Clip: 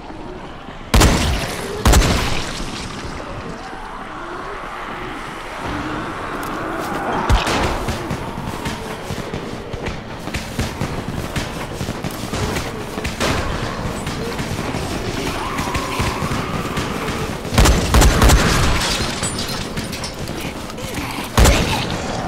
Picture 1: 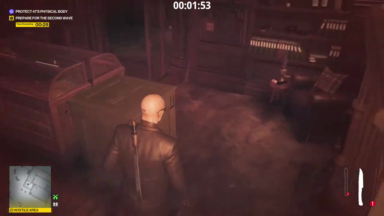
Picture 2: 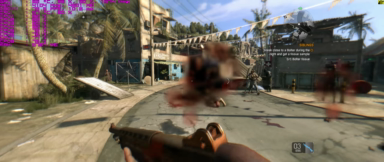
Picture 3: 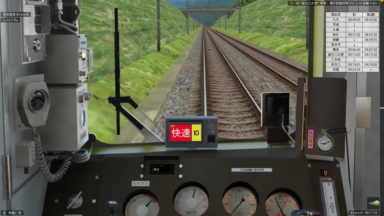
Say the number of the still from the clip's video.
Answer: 2